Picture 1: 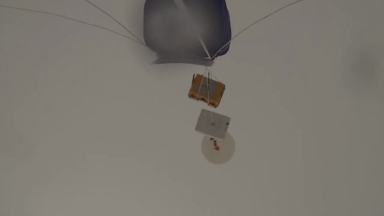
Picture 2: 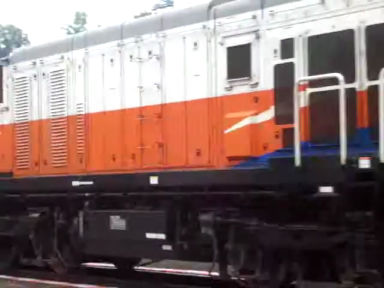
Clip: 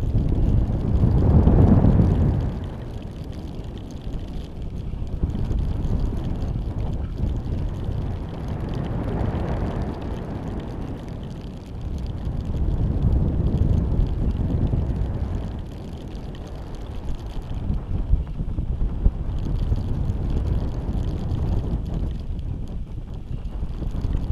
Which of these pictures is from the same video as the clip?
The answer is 1